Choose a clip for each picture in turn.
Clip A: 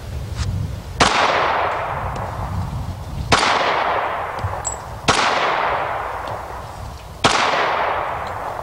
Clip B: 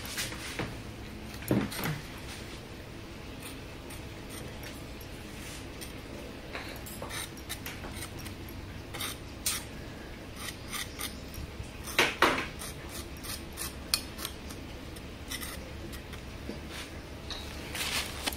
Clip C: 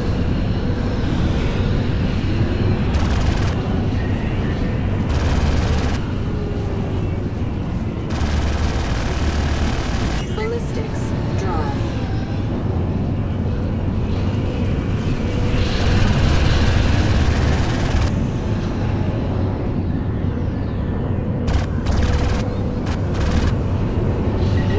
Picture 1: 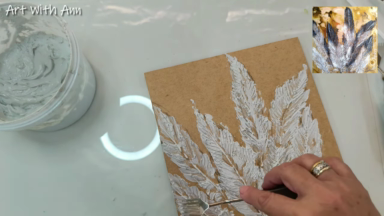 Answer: B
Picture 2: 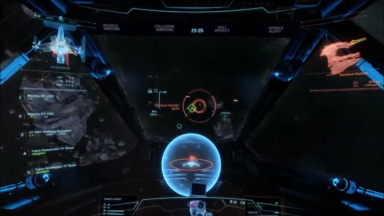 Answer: C